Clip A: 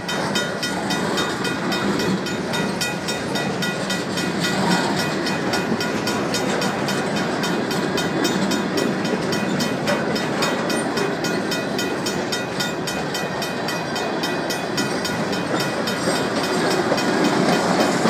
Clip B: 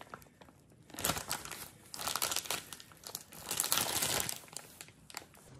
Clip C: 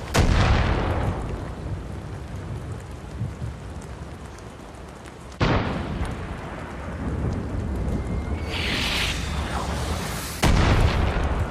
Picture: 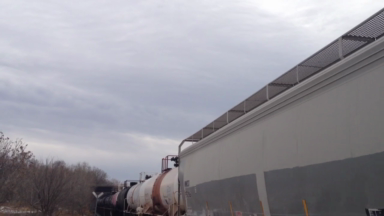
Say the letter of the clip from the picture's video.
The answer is A